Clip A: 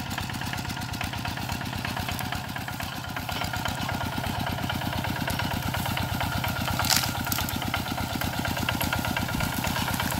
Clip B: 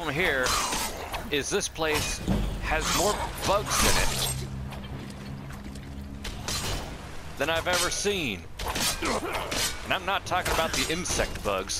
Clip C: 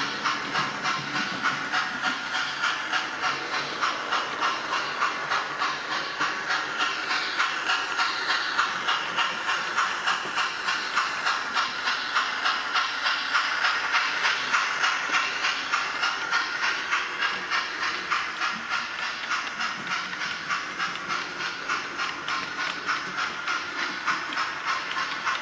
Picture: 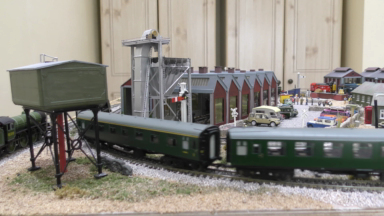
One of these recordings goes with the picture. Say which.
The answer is C